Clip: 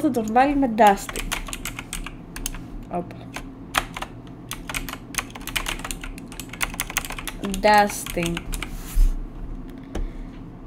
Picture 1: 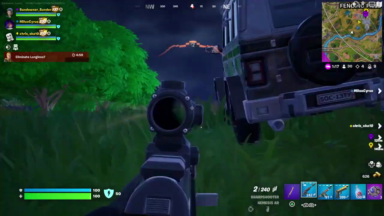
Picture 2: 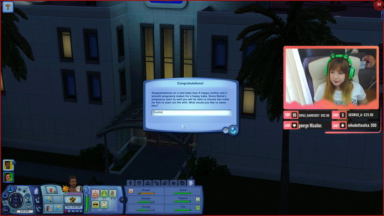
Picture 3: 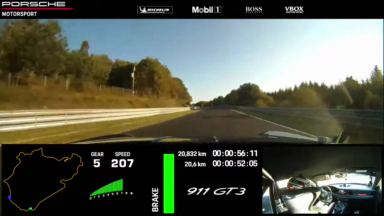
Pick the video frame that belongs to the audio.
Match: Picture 2